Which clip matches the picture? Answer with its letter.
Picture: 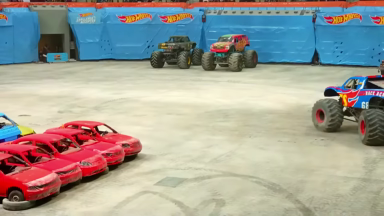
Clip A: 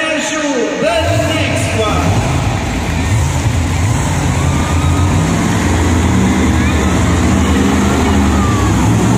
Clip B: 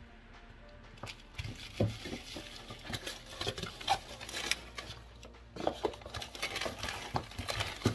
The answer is A